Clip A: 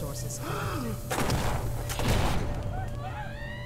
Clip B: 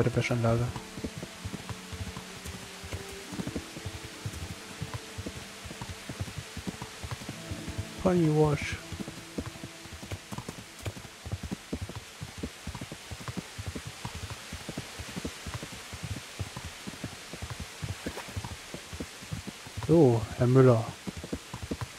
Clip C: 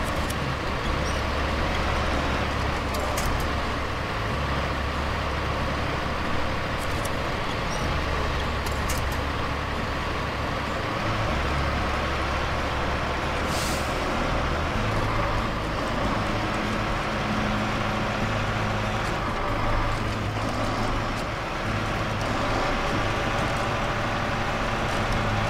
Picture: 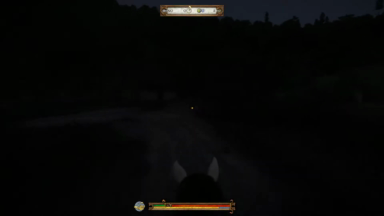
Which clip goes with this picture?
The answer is B